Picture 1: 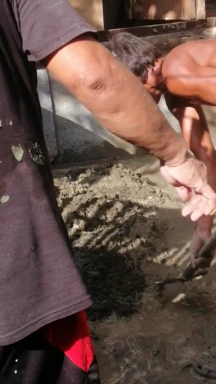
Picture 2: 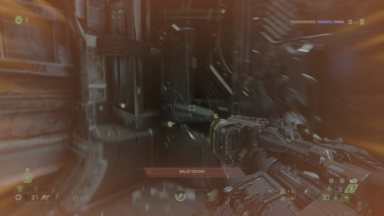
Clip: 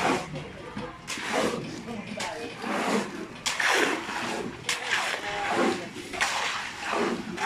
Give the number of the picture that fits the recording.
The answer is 1